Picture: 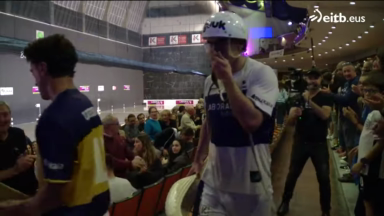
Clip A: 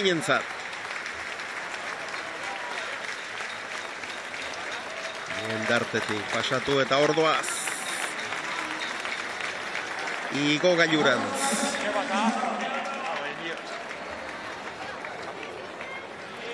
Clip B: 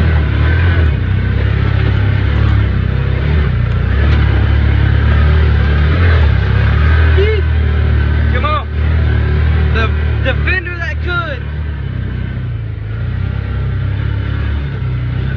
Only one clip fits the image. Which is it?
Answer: A